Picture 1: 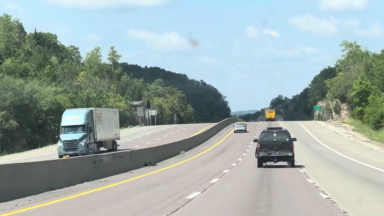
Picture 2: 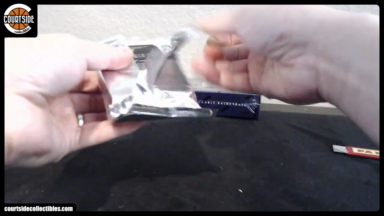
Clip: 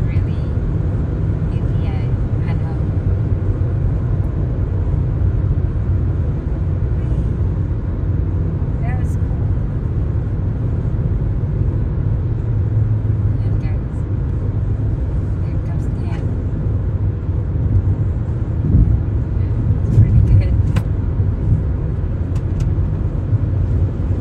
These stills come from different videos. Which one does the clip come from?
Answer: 1